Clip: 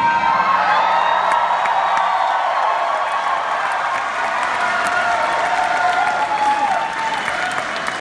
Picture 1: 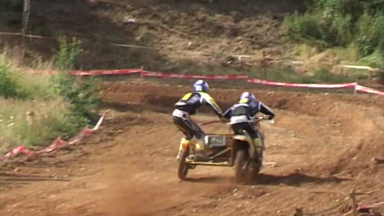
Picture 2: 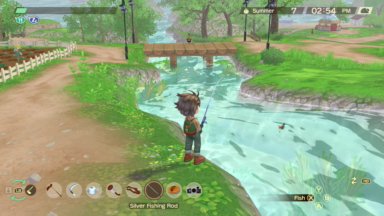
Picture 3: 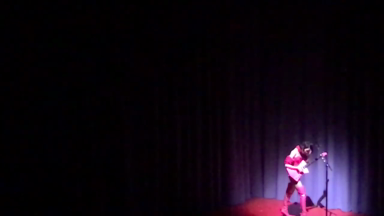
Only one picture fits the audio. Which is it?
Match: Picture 3